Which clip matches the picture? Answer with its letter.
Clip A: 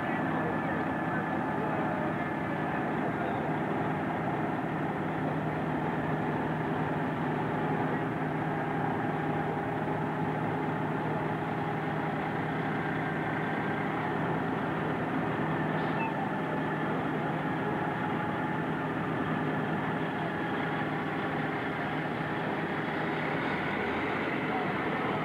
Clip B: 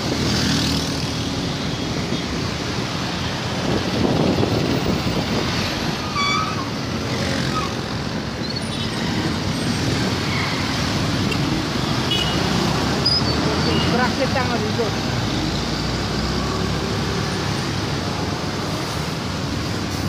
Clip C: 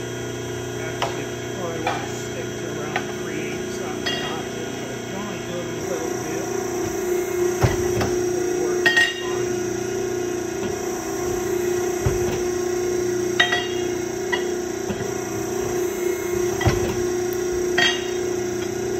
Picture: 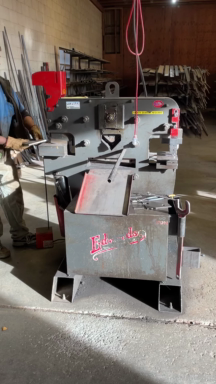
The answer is C